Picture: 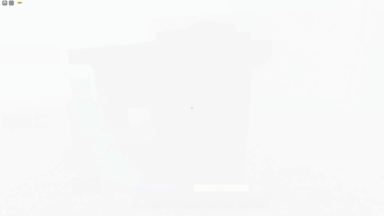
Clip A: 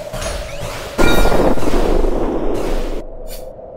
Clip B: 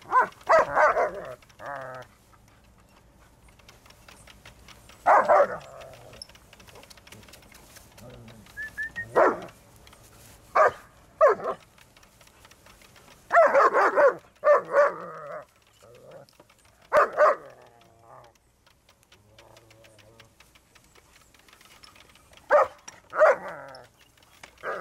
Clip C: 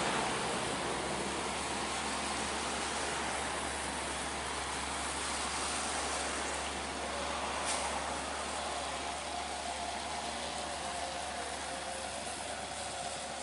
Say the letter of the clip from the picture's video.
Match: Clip A